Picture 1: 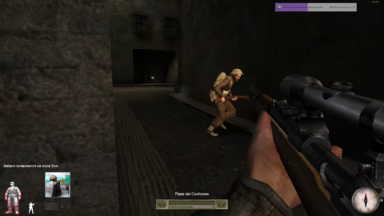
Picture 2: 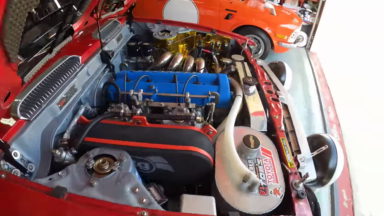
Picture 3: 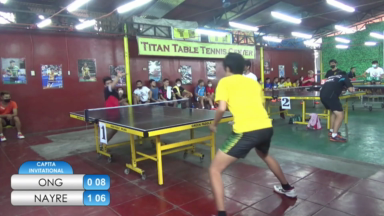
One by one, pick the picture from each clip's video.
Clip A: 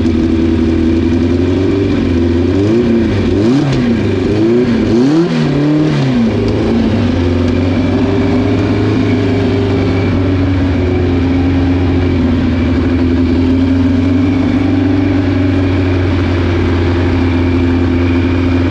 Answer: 2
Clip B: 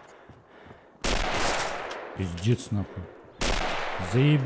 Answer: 1